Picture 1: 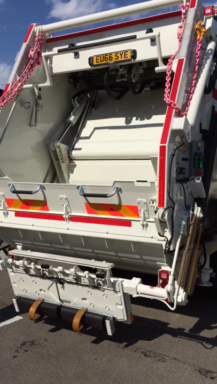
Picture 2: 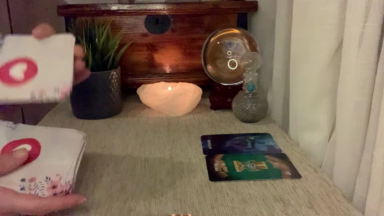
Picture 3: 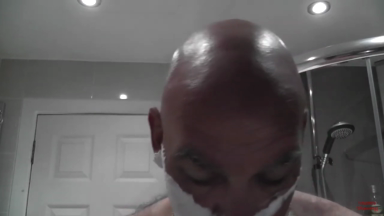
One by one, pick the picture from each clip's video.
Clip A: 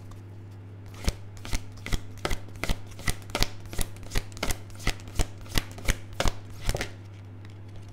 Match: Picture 2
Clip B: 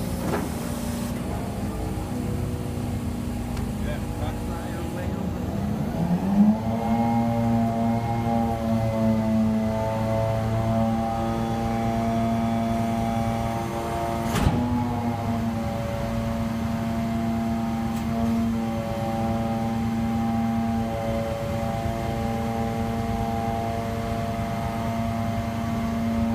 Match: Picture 1